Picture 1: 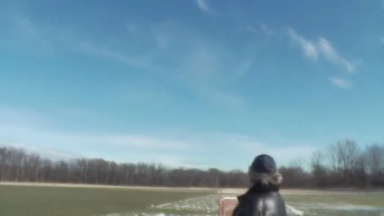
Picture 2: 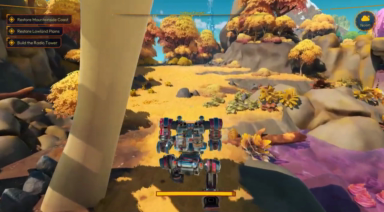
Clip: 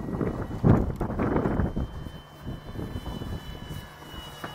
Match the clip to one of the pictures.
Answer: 1